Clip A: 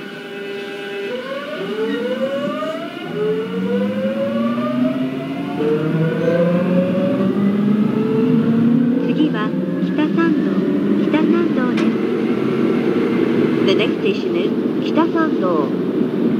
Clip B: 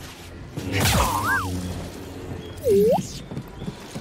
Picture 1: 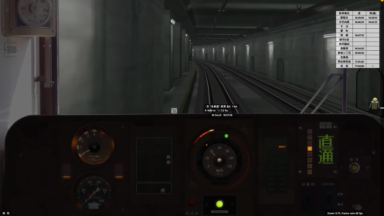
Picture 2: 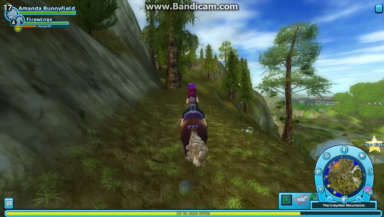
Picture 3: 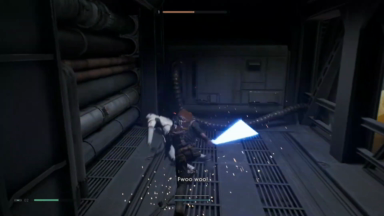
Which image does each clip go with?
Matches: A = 1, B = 3